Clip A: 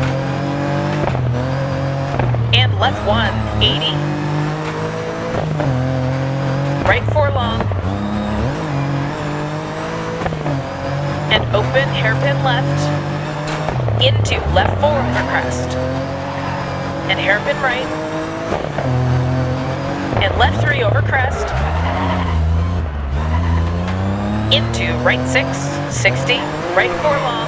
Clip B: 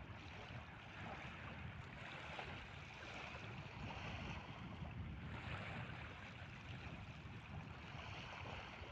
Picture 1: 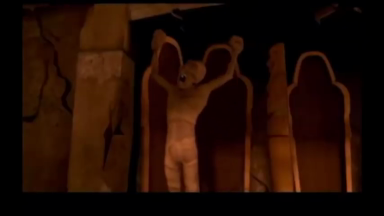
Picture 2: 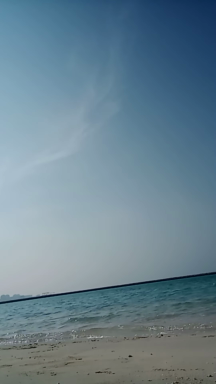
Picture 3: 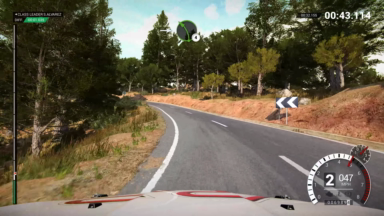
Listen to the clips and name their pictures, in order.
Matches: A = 3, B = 2